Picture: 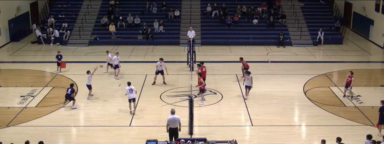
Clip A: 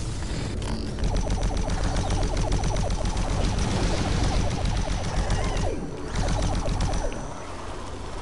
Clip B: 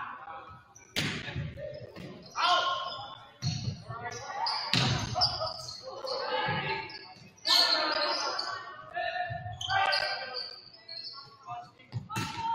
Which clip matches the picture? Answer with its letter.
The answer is B